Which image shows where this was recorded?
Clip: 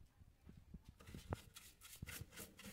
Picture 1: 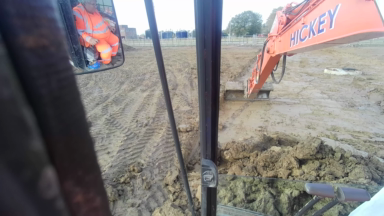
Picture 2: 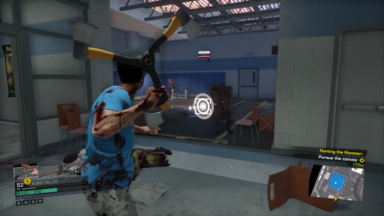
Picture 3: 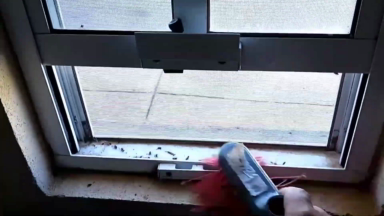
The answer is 3